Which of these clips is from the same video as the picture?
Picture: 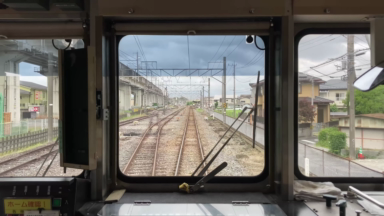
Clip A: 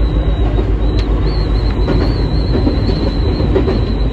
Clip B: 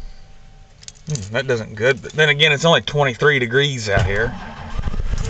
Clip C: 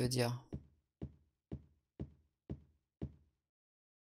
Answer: A